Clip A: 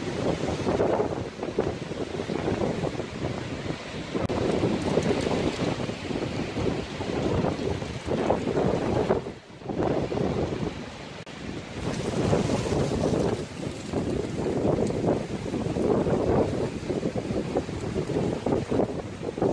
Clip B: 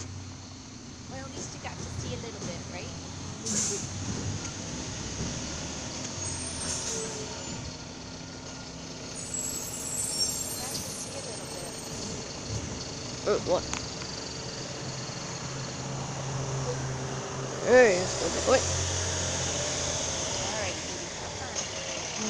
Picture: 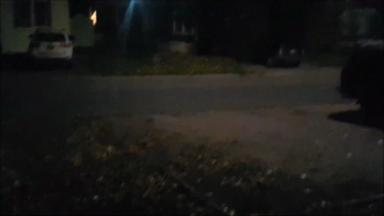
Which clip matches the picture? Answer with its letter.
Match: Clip A